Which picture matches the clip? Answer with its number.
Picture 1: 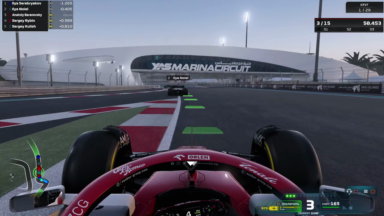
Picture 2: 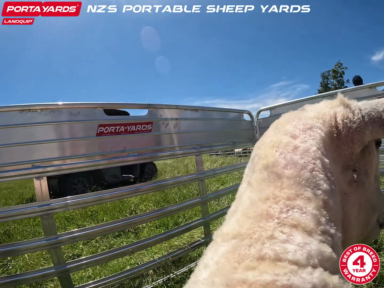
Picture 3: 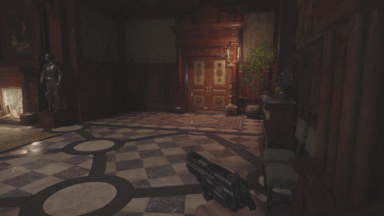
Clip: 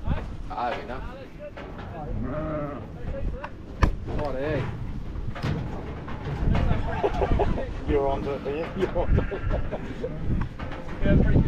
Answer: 2